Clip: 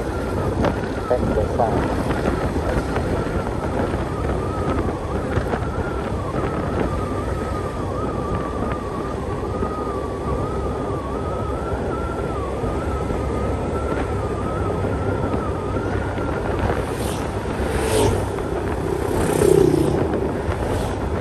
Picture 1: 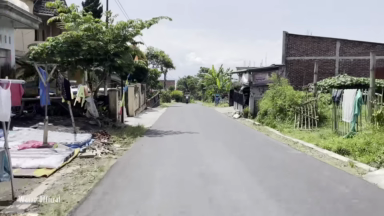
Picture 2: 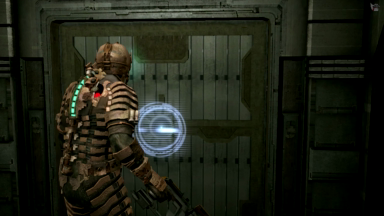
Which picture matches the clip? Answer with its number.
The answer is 1